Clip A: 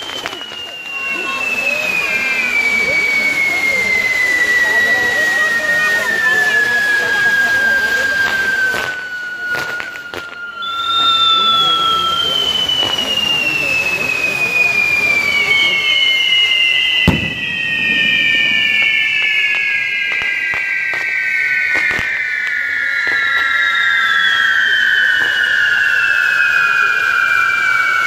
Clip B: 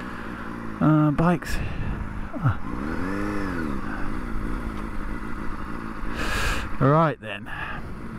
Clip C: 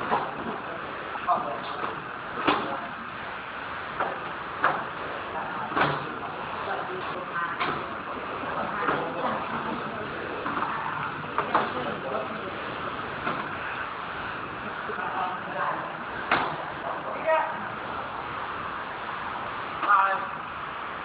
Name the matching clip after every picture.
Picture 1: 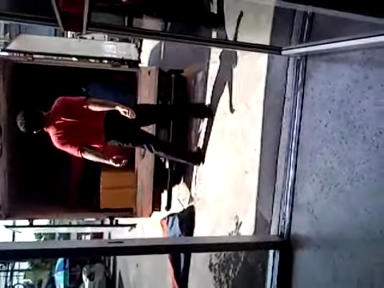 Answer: C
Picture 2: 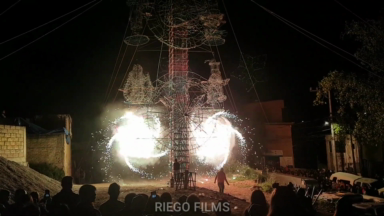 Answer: A